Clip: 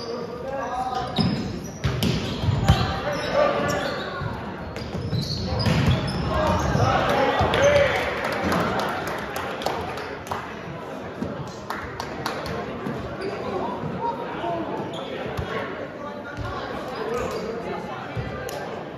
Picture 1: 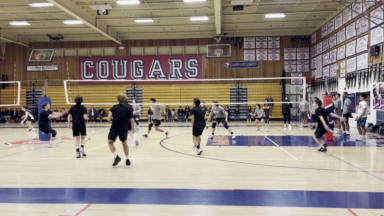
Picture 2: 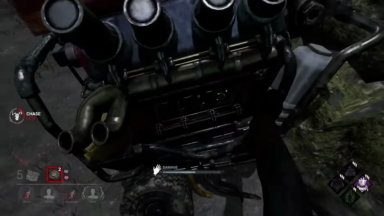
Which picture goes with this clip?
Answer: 1